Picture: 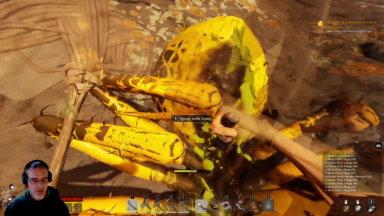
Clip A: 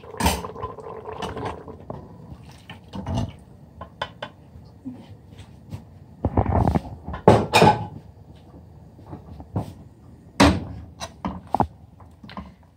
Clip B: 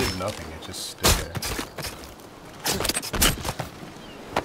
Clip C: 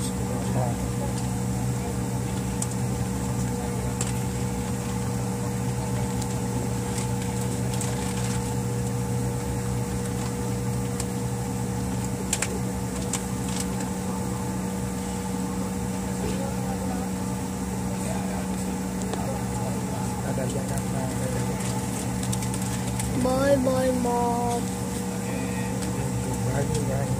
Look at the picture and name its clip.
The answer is B